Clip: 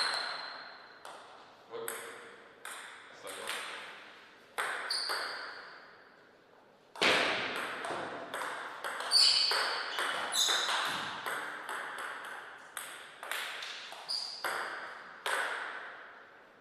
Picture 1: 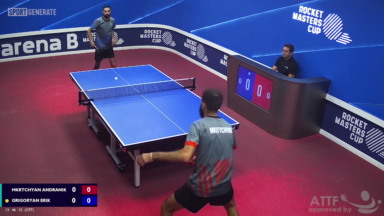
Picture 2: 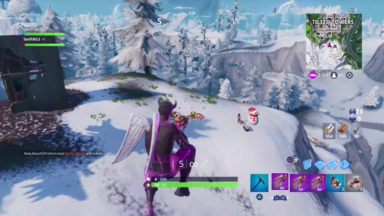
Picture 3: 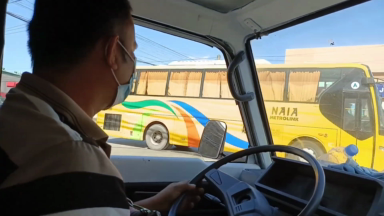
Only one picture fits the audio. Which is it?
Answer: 1